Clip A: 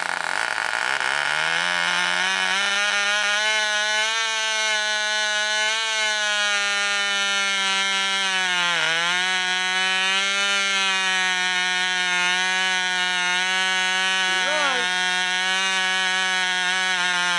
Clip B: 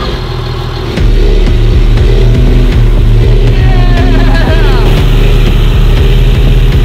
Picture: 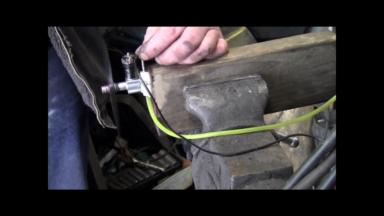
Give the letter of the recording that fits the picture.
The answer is A